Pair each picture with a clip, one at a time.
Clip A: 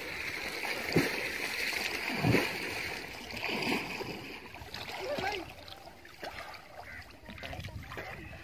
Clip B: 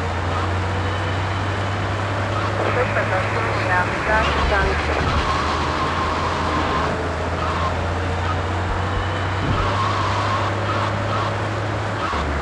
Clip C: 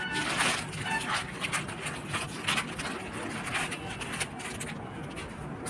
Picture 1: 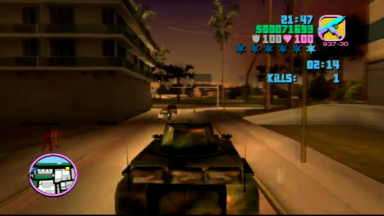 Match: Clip B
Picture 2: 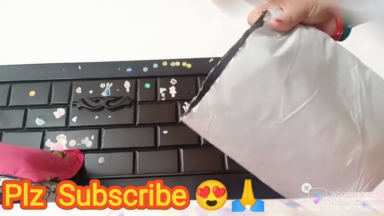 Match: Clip C